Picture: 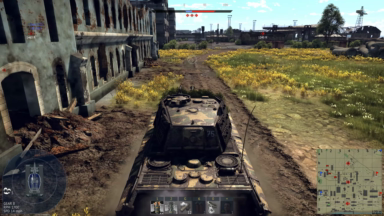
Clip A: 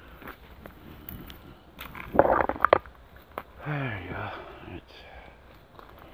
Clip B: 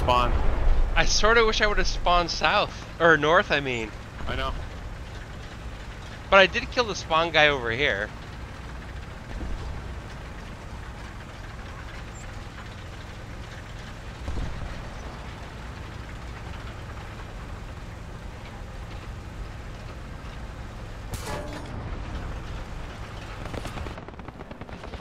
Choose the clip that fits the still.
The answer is B